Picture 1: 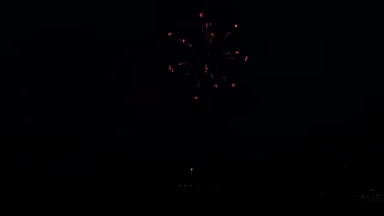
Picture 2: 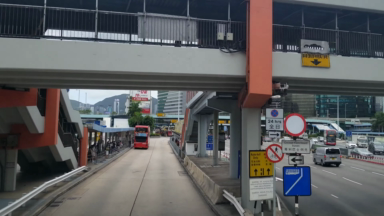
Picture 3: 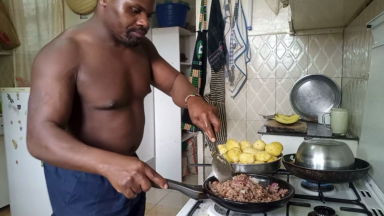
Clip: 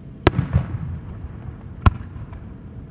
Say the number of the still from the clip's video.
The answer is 1